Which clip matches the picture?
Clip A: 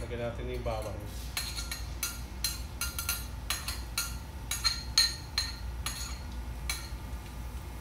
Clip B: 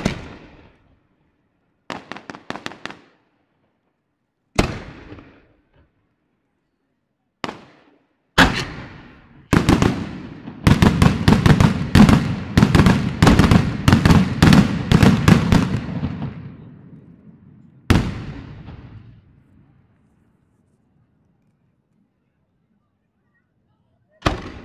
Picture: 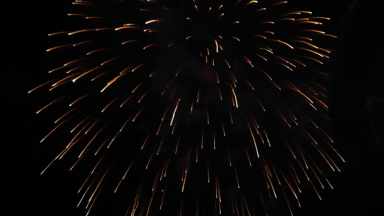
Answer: B